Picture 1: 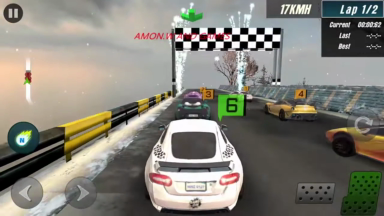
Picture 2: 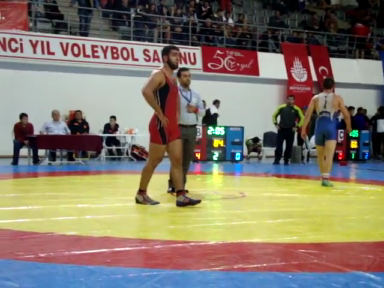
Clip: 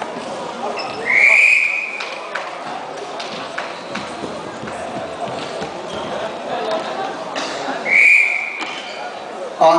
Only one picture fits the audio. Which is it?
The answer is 2